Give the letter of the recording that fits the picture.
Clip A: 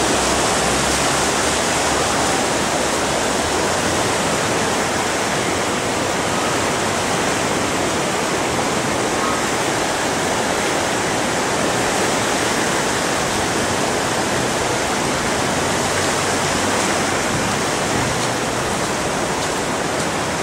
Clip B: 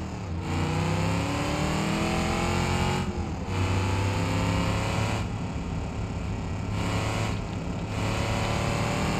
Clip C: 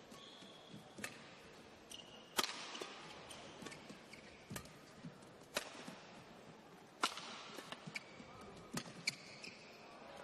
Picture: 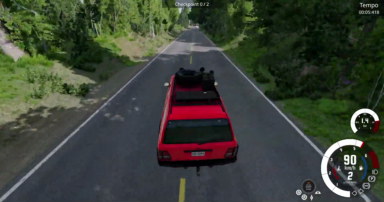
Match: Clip B